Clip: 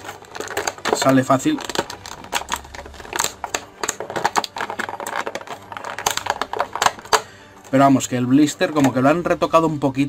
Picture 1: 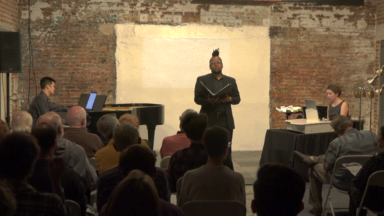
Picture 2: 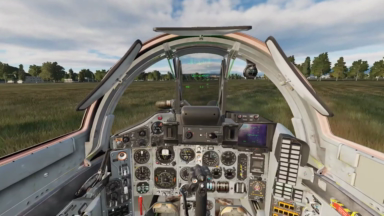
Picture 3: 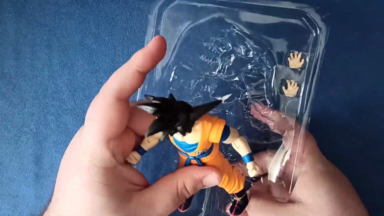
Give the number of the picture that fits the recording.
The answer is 3